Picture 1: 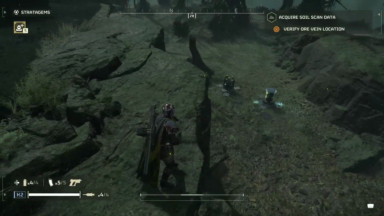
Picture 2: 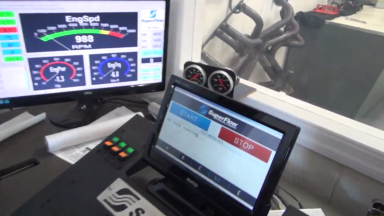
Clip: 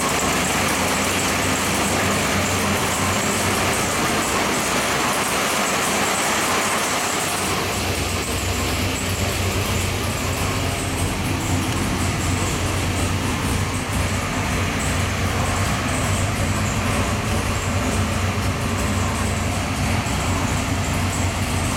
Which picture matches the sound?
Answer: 2